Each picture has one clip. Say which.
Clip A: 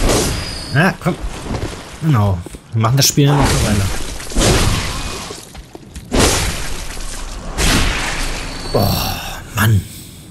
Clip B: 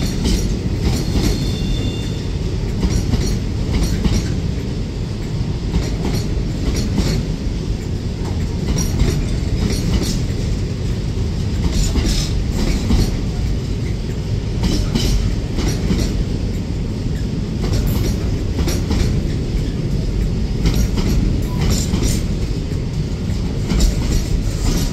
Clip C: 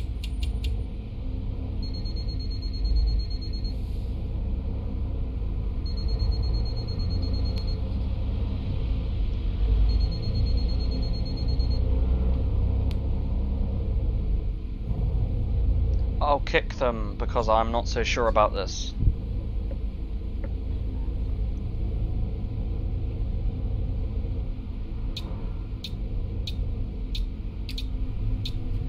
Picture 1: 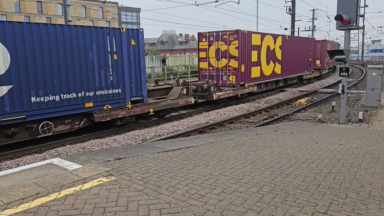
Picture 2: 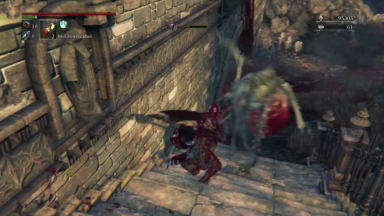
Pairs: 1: B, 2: A